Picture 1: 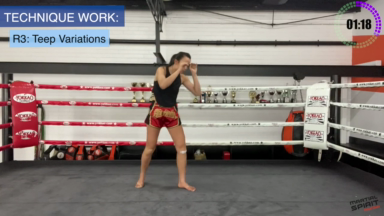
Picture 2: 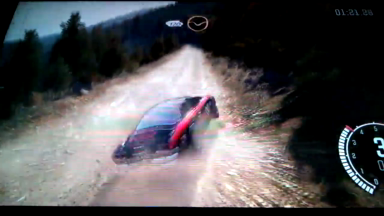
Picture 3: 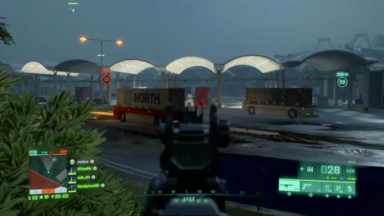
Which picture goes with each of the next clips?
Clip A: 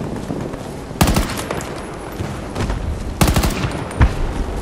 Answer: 3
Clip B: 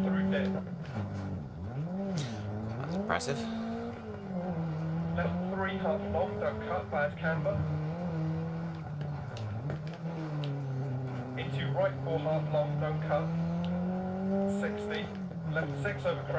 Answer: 2